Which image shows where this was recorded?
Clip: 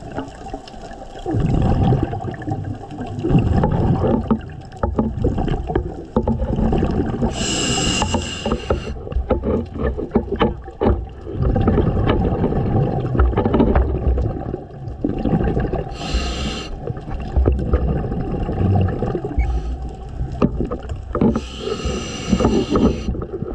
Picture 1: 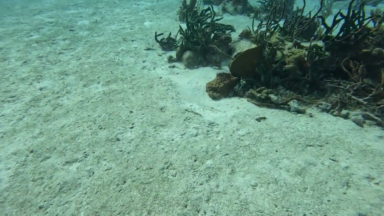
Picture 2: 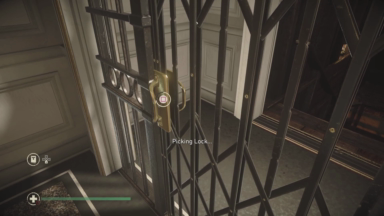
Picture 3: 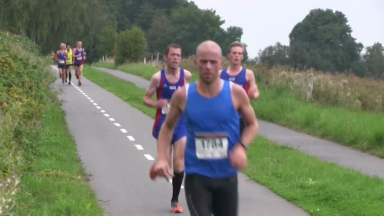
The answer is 1